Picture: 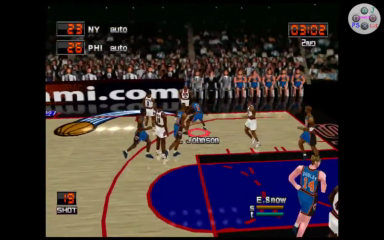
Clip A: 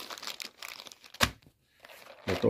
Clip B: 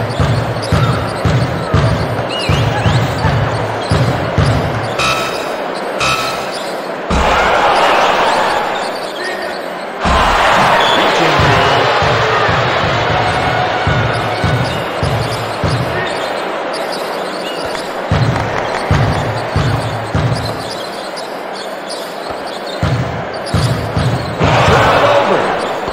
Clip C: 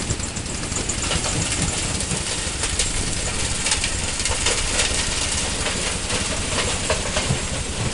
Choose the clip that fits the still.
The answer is B